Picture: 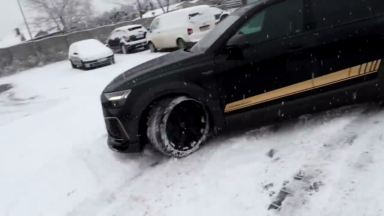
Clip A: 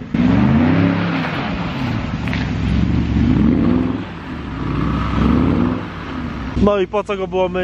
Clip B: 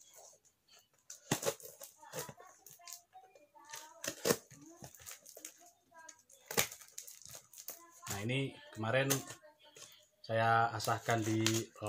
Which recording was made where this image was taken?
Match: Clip A